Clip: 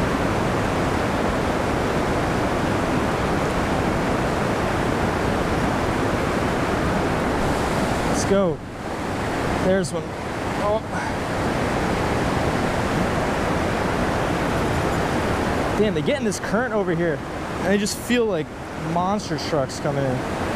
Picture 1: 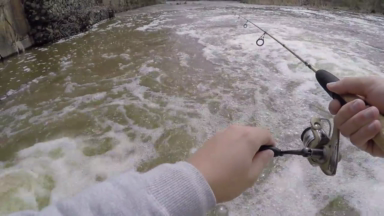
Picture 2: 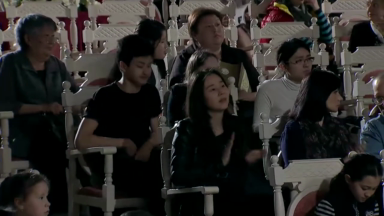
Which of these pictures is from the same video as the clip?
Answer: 1